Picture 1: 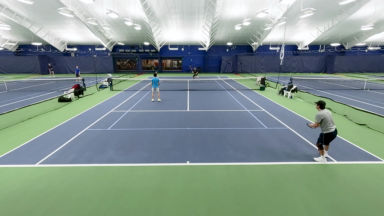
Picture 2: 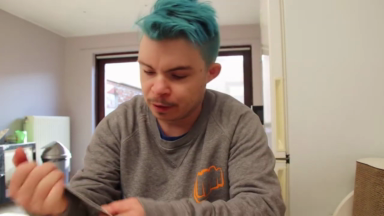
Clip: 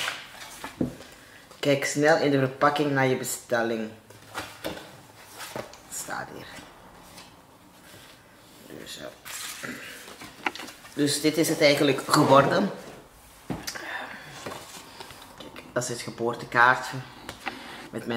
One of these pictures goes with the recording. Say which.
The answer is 2